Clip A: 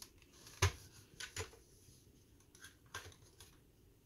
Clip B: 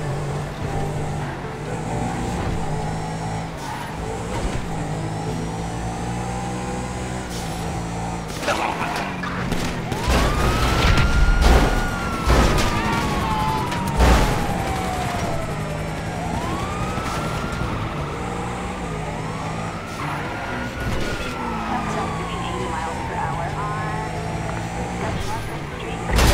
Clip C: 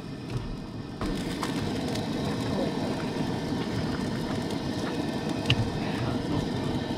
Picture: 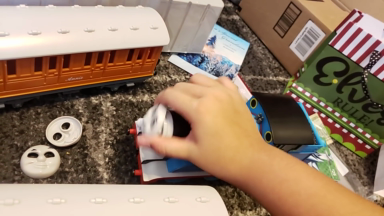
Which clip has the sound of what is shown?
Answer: A